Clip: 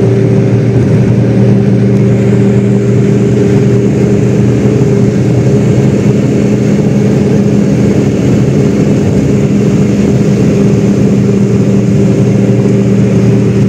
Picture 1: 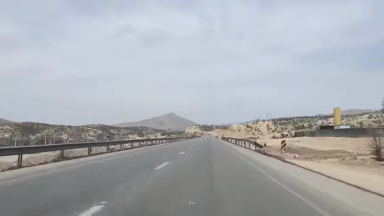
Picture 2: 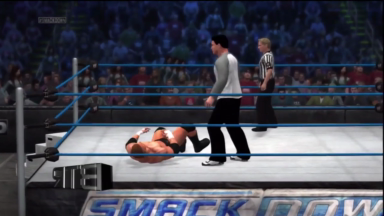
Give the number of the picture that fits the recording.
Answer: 1